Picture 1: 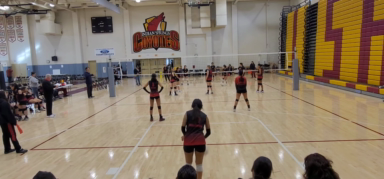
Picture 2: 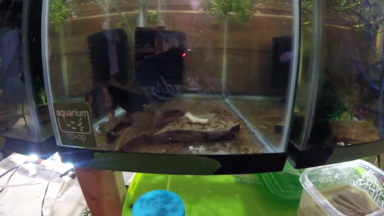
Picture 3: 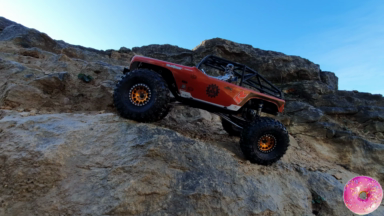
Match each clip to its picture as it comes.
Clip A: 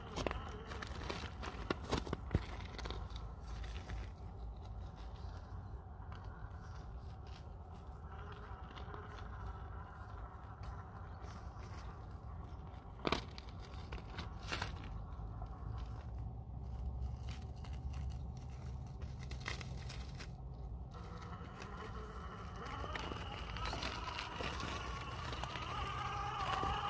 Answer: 3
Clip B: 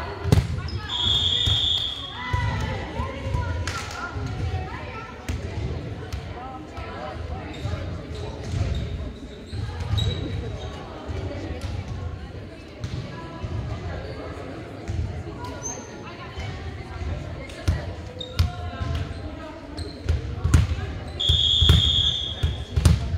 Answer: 1